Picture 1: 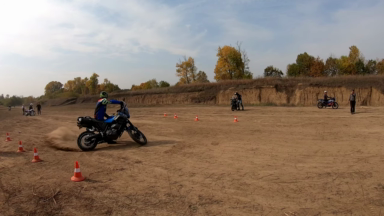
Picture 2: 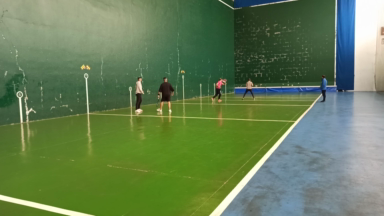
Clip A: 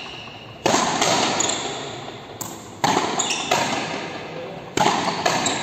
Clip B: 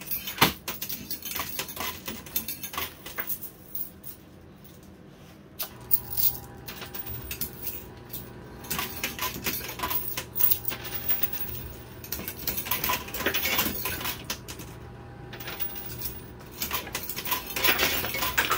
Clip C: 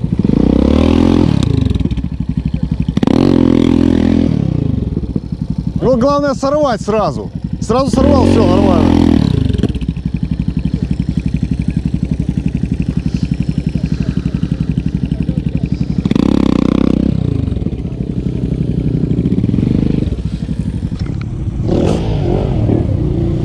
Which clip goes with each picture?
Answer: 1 C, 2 A